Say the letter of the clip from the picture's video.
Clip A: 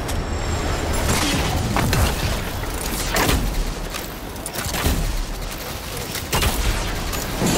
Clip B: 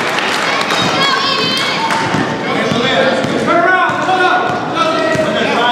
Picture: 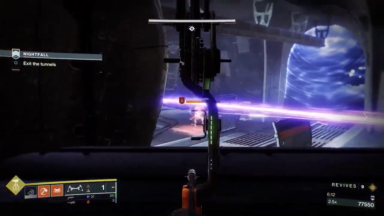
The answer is A